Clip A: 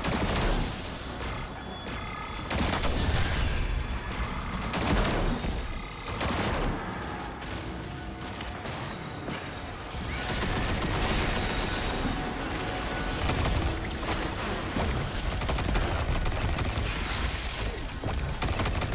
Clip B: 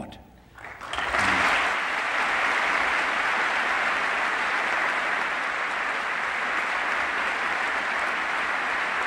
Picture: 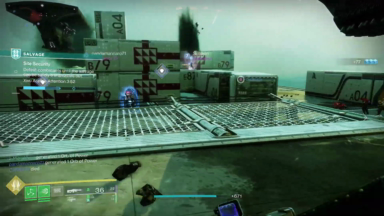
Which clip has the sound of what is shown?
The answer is A